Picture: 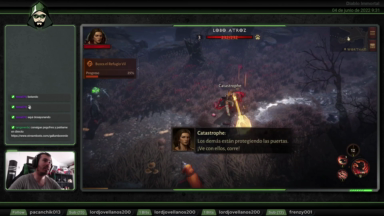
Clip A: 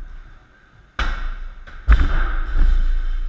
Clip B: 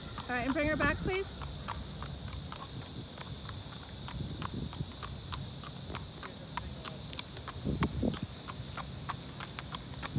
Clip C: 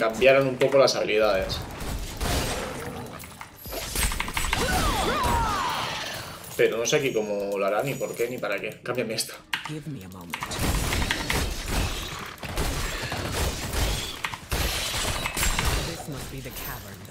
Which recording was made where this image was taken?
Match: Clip C